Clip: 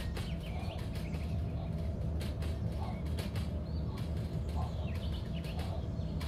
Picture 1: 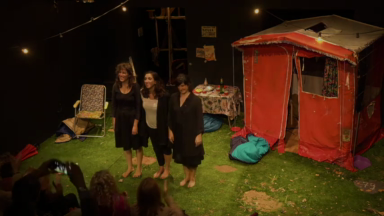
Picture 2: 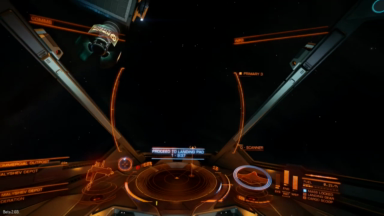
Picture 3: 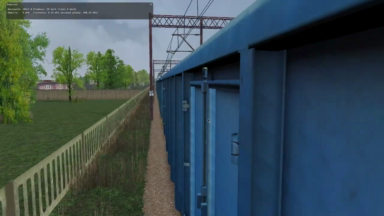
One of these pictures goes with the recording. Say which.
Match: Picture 3